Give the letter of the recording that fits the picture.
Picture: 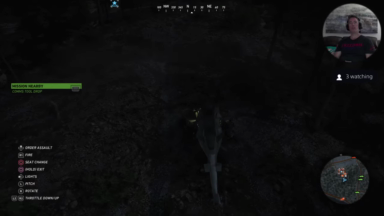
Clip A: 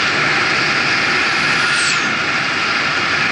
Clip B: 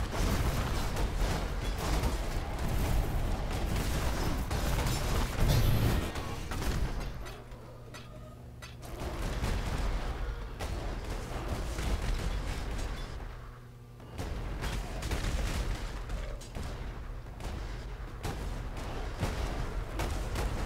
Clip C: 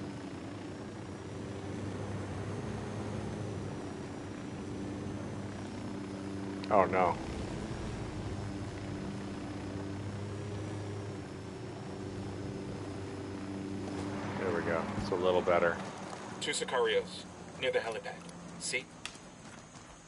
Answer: C